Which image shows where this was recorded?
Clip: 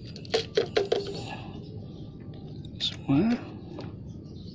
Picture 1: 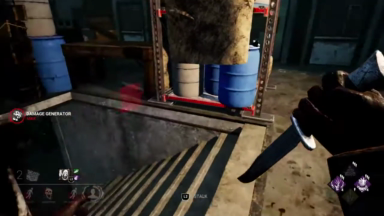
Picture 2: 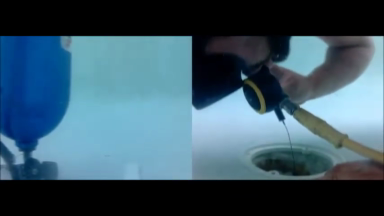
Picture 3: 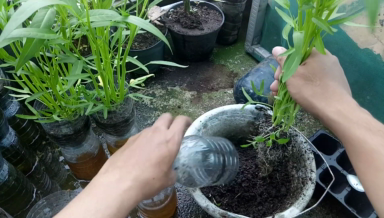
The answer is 3